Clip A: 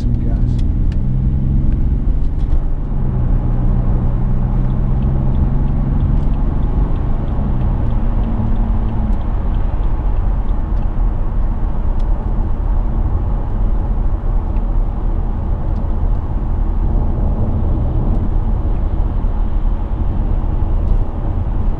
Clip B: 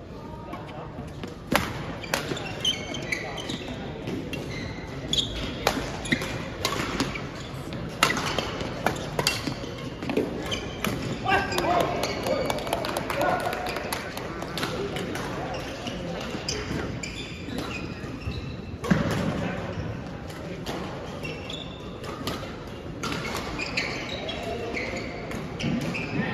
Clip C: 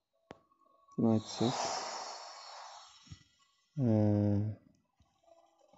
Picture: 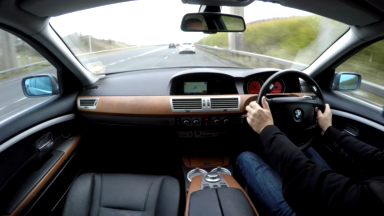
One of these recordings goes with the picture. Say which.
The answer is A